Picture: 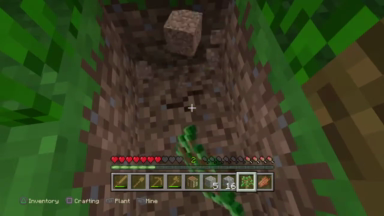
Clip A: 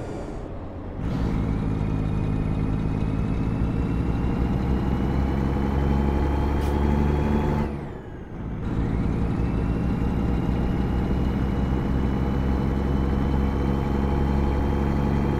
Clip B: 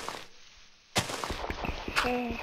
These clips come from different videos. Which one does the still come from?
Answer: B